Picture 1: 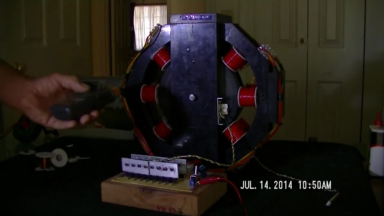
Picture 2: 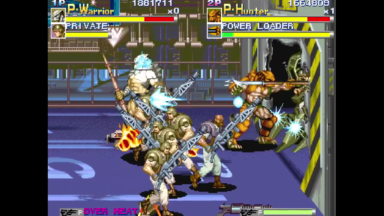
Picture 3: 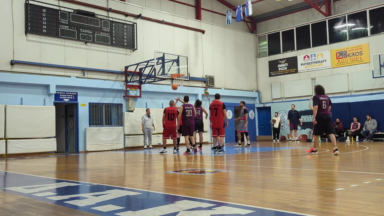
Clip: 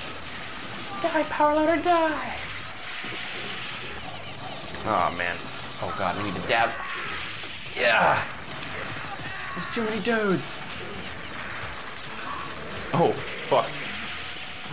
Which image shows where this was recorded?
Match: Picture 2